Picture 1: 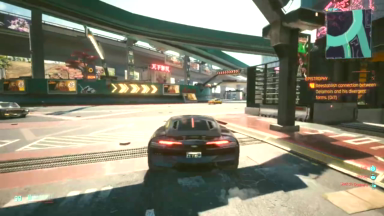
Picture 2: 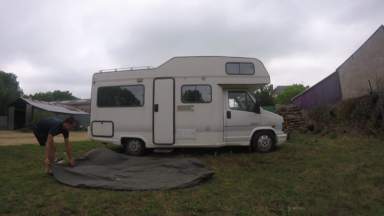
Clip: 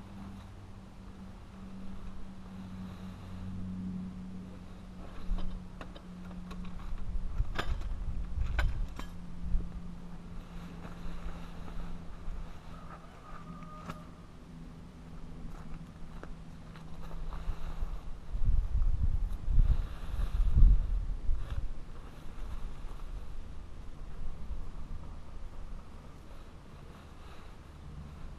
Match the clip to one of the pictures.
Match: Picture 2